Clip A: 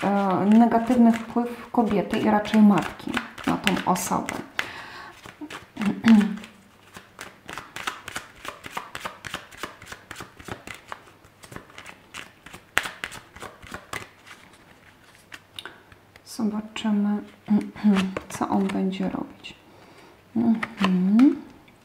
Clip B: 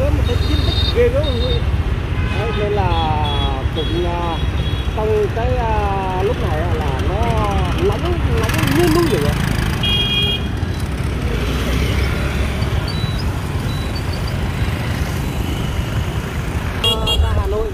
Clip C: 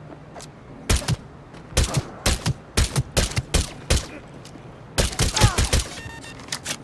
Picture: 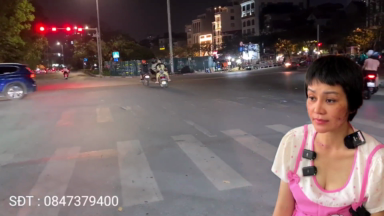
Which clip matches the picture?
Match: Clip B